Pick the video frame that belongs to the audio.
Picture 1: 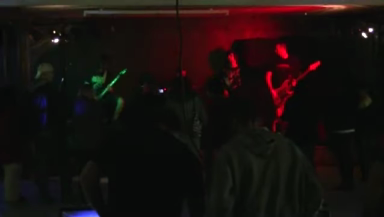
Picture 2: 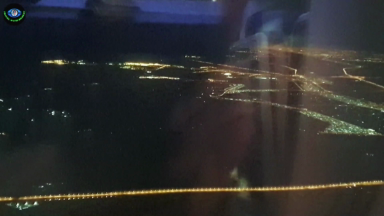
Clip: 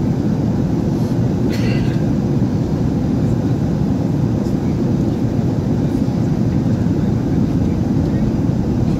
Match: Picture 2